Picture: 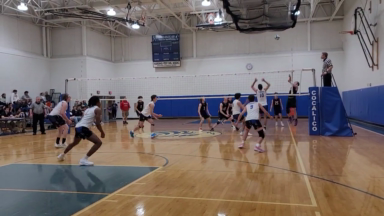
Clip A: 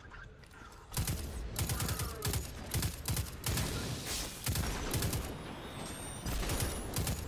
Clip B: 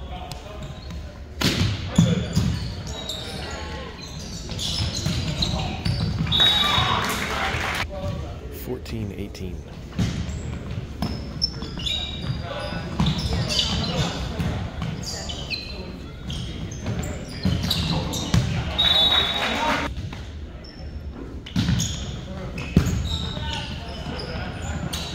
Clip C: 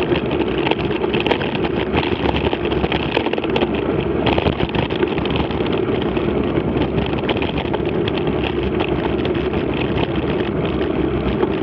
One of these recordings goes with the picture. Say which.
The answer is B